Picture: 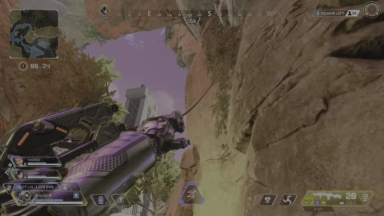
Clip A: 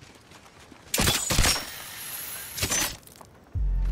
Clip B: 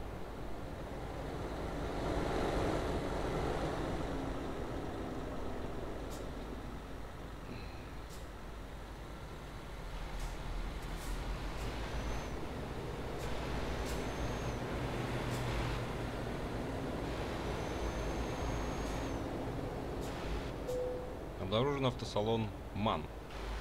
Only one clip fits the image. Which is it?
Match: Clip A